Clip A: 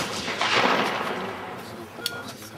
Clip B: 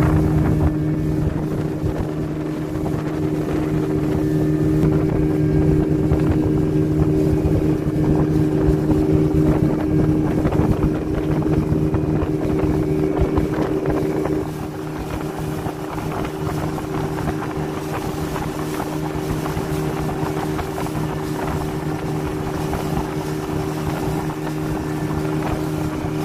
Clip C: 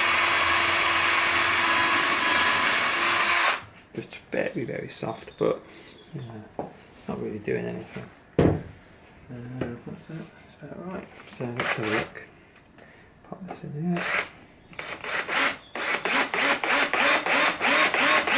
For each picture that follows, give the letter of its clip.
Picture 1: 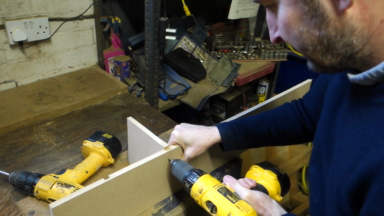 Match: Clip C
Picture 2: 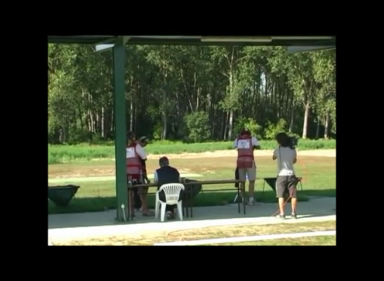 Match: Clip A